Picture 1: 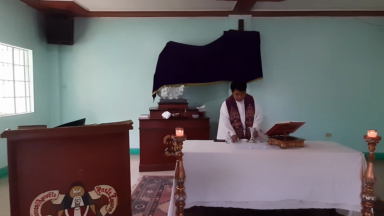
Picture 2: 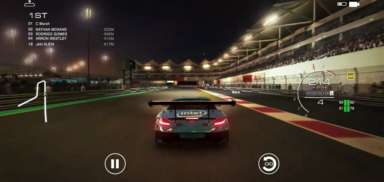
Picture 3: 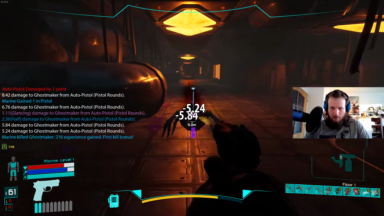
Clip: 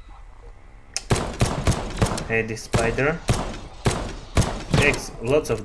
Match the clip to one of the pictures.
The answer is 3